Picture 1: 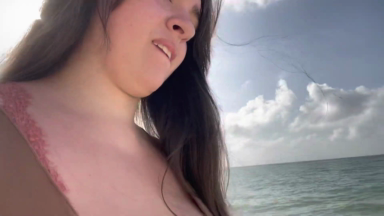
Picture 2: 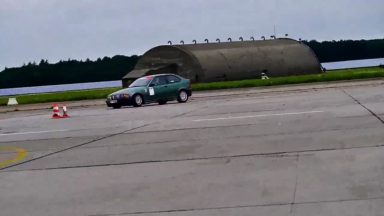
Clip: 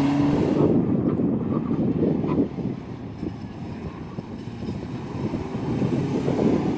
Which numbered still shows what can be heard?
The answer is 2